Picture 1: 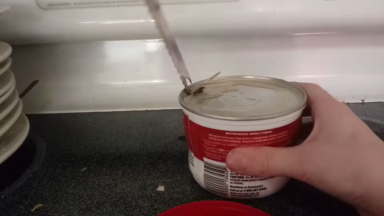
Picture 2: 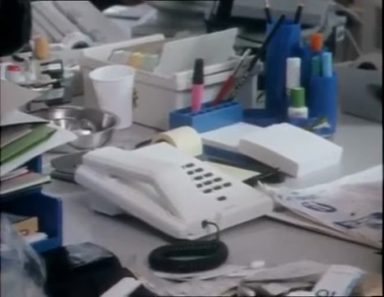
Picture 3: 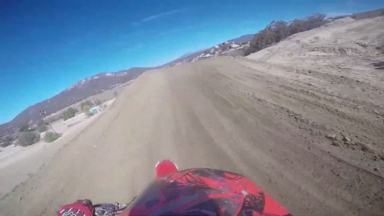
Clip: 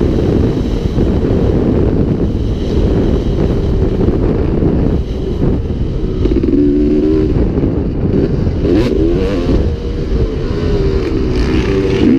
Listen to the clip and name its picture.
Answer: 3